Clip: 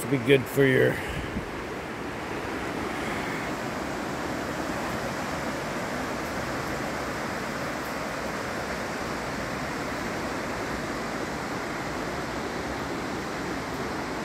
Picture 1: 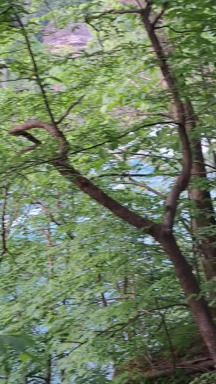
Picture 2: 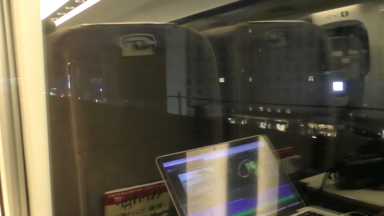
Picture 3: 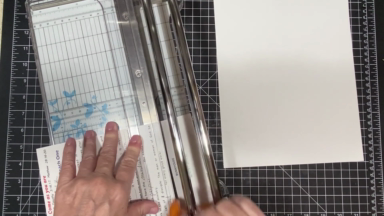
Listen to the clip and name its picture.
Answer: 1